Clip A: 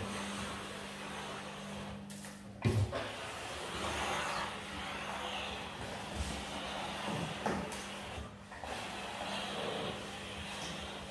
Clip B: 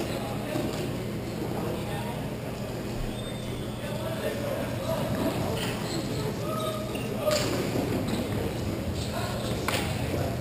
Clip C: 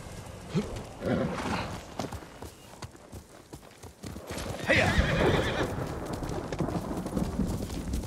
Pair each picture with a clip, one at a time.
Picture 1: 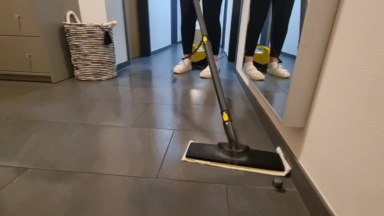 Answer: A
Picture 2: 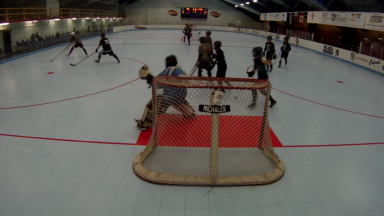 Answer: B